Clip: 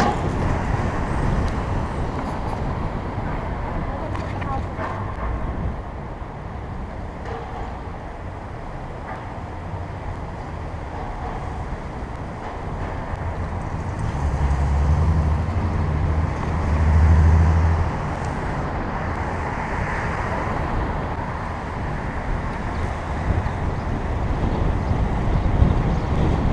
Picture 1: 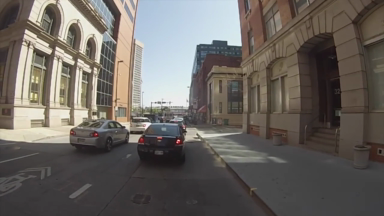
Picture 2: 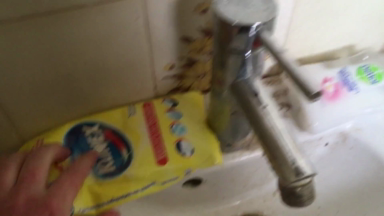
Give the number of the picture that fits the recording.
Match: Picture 1